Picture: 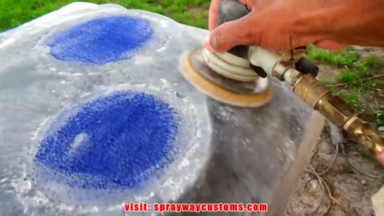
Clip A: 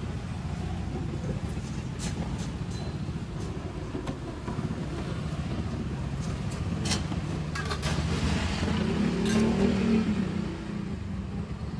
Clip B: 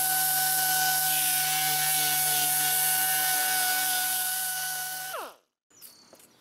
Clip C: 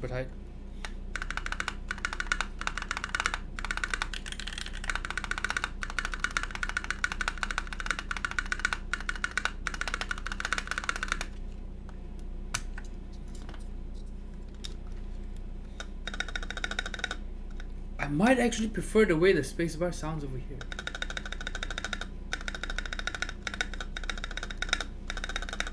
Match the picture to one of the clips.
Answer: B